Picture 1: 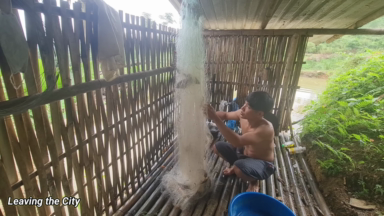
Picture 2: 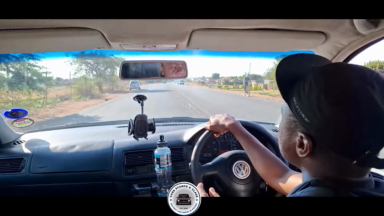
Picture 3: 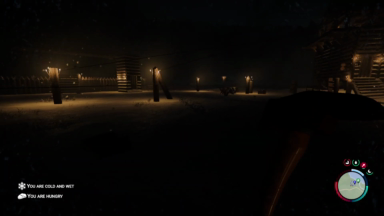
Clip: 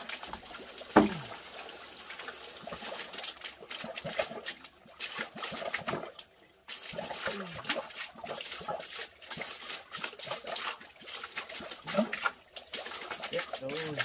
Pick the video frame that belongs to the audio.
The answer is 1